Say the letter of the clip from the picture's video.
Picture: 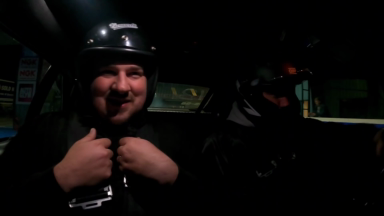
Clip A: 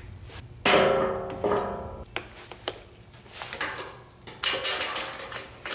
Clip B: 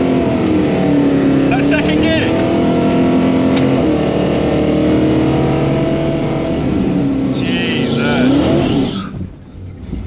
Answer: B